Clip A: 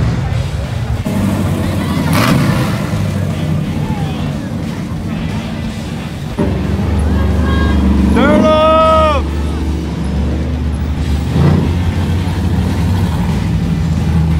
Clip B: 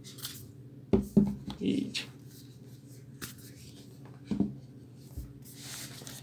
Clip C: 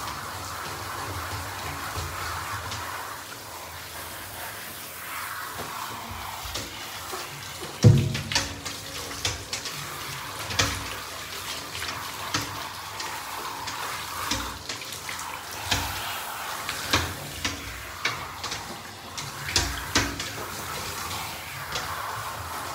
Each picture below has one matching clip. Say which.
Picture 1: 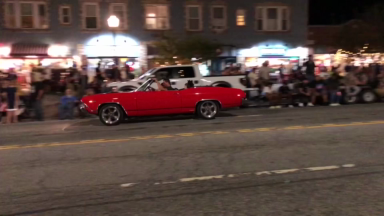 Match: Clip A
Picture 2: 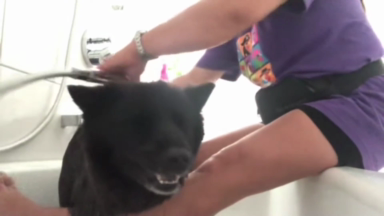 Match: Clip C